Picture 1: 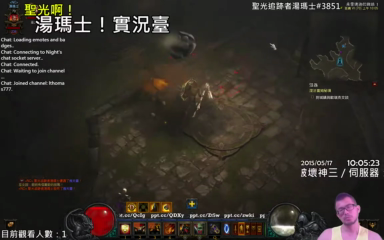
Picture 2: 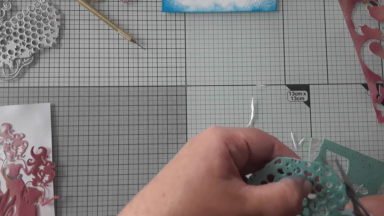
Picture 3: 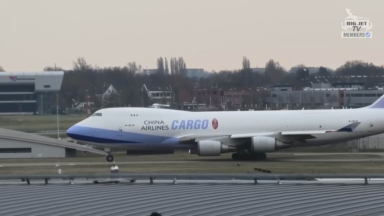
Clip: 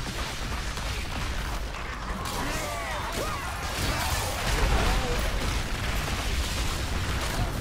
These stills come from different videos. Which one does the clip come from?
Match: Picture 1